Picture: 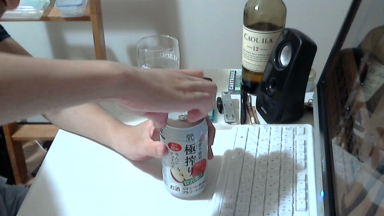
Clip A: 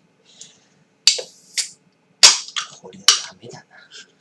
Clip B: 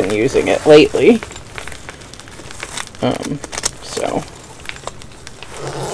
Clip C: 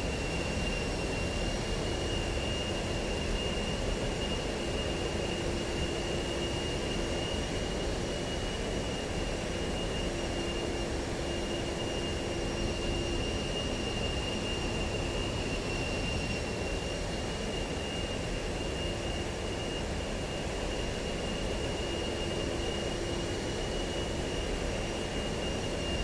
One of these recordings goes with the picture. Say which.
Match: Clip A